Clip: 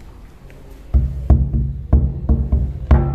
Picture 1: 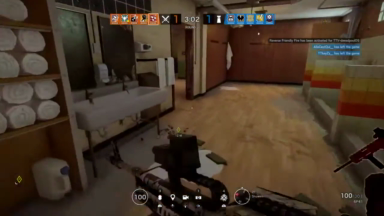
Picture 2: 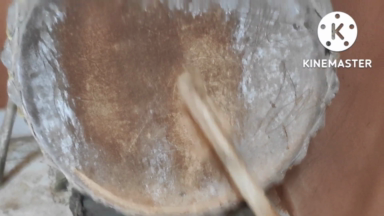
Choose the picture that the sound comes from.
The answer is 2